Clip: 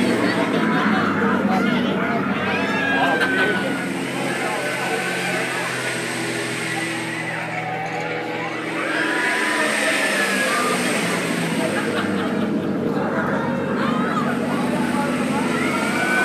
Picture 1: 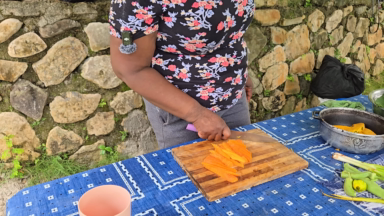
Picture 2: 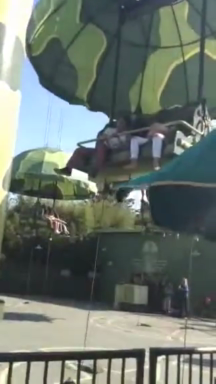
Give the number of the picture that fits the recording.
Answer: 2